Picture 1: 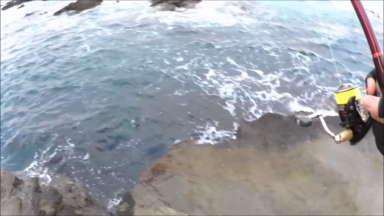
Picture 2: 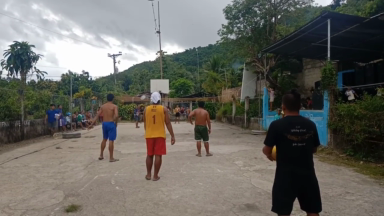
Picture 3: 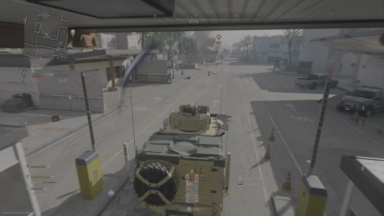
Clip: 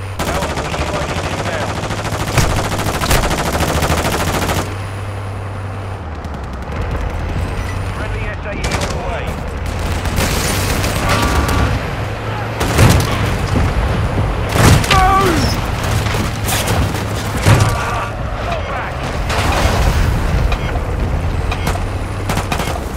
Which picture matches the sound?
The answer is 3